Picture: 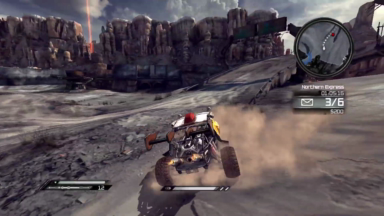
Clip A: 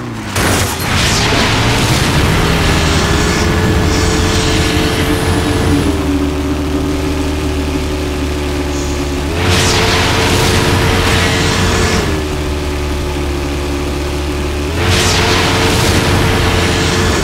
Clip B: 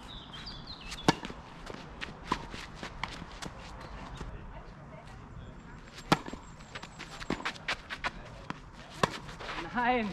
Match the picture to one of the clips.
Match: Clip A